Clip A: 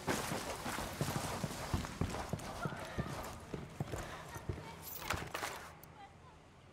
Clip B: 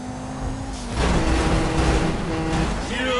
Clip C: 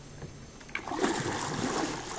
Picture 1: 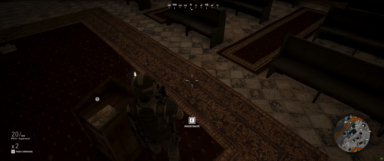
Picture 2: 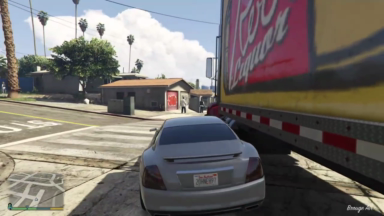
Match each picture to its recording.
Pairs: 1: A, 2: B